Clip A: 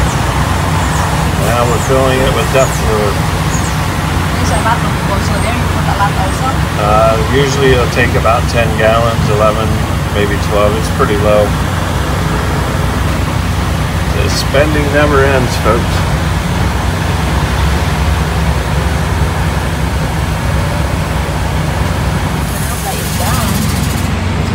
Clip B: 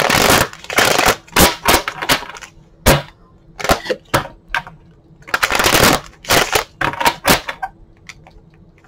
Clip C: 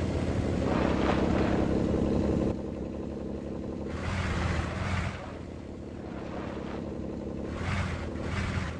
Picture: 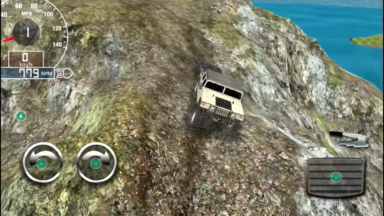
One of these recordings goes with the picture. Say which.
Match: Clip C